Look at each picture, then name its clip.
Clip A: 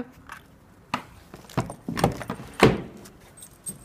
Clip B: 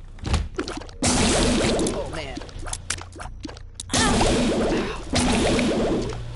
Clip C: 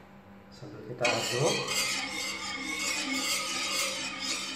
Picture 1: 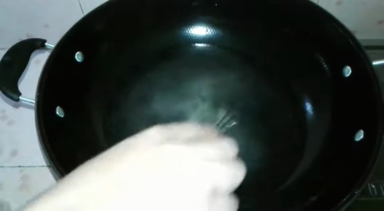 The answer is C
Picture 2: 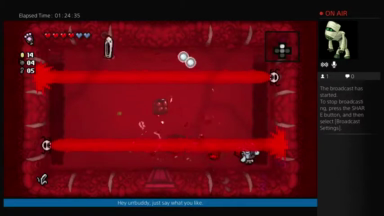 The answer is B